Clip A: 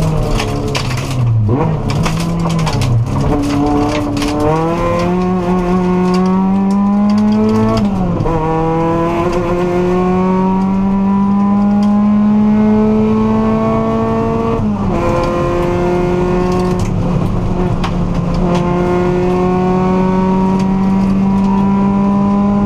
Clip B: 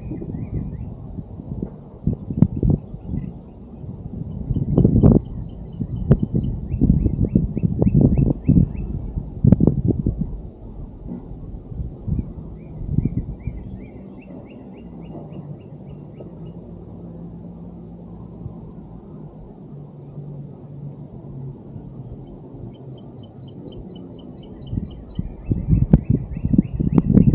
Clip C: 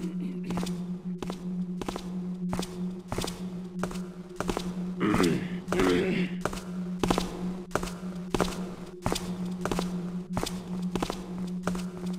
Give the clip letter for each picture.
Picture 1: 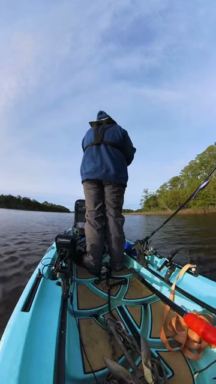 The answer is B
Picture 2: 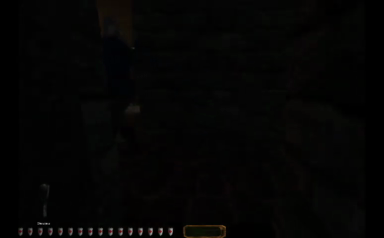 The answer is C